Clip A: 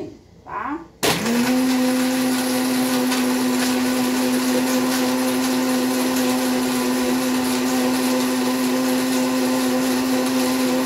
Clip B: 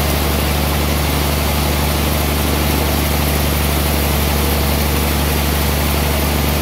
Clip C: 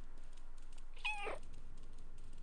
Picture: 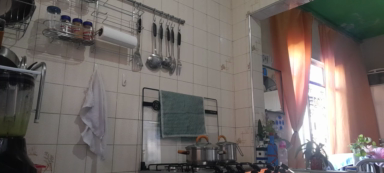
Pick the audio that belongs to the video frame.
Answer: A